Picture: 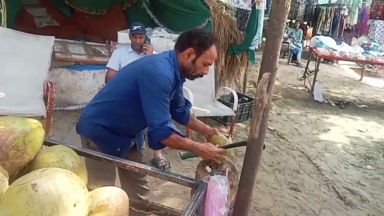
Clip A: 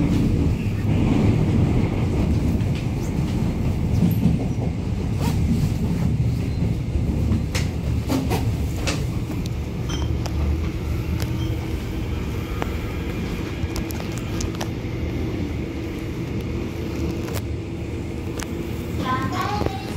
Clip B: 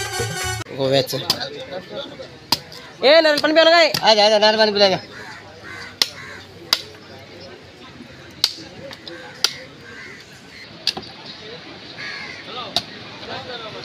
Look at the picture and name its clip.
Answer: B